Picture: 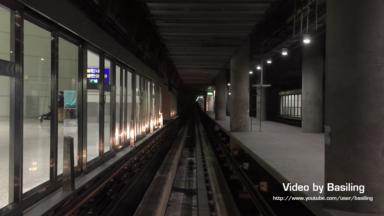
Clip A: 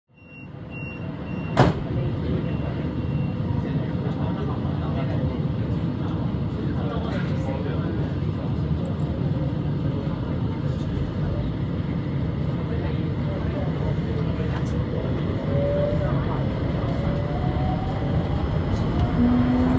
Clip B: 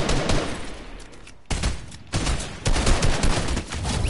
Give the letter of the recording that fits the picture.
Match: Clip A